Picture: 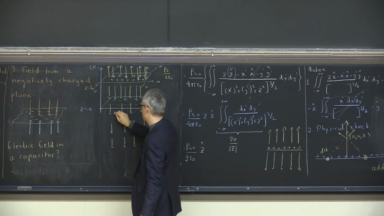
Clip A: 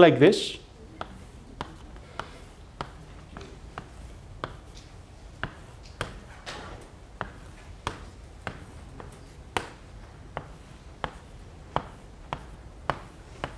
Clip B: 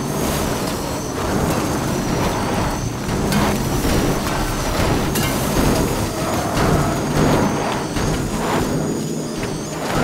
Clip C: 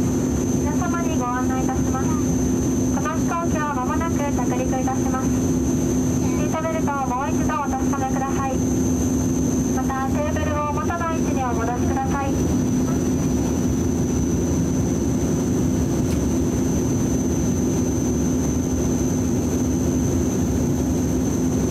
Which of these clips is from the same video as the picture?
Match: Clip A